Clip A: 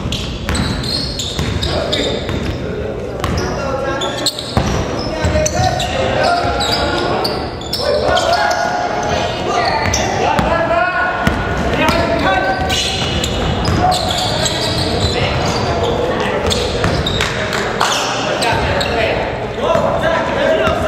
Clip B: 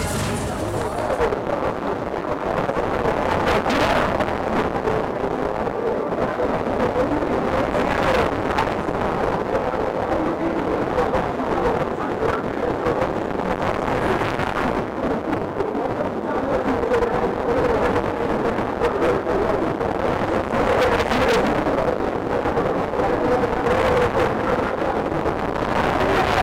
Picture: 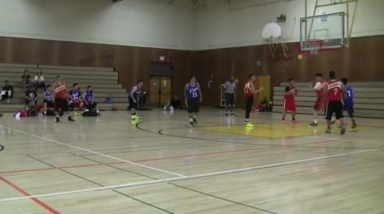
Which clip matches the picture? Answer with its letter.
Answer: A